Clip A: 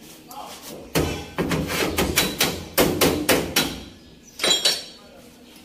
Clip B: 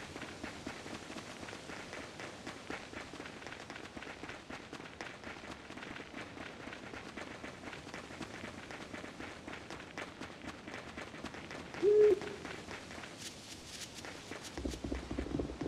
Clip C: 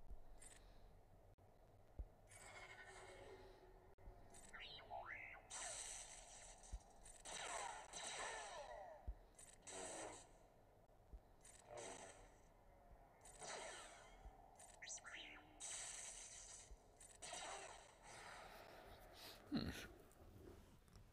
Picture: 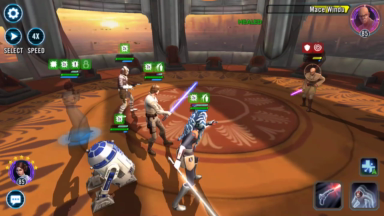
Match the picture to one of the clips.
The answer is C